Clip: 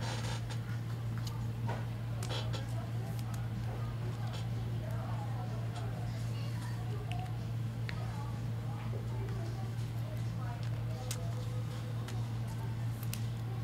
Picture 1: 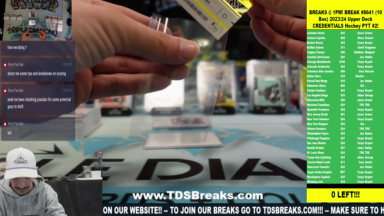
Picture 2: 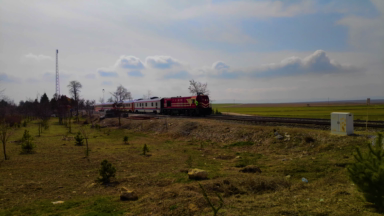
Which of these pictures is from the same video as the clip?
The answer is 1